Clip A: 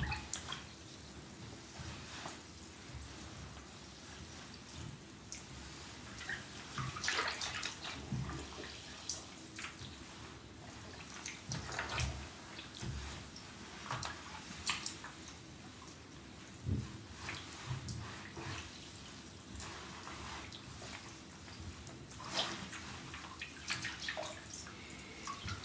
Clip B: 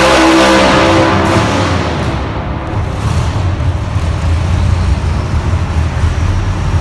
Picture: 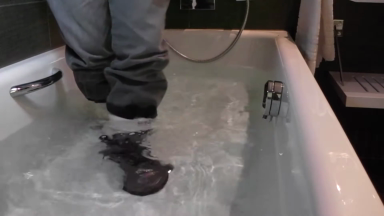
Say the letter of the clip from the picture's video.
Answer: A